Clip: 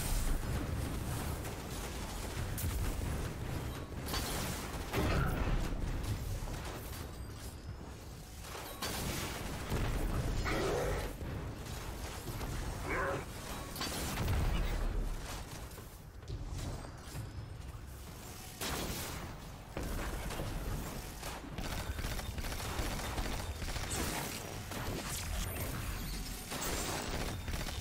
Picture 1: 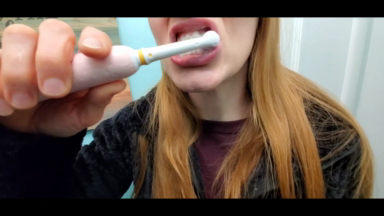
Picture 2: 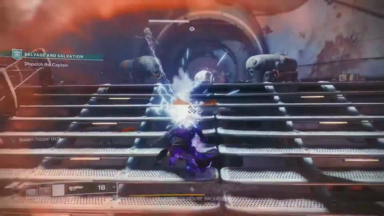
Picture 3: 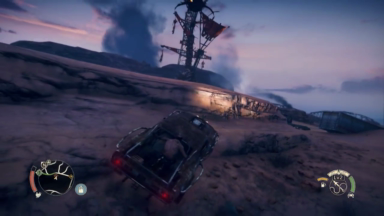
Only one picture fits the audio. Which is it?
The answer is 2